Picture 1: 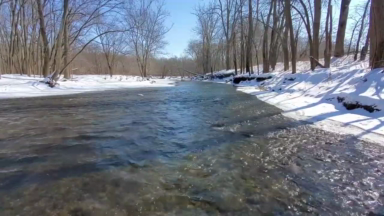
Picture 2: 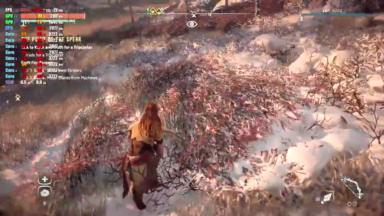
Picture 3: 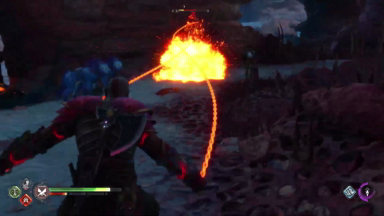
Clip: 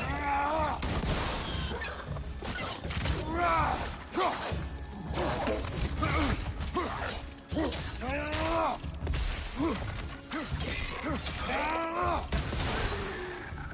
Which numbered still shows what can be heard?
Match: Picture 3